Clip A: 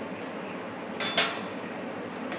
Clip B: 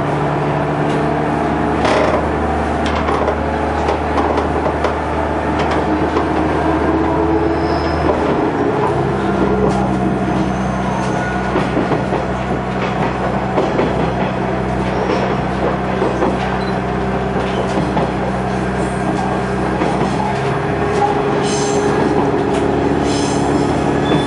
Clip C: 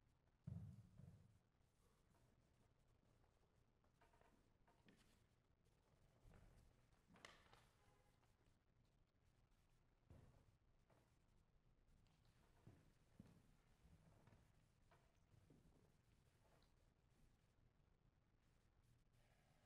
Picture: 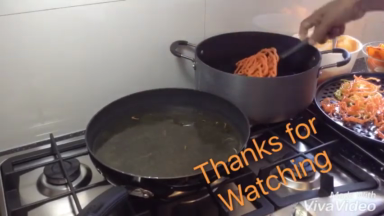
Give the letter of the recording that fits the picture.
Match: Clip A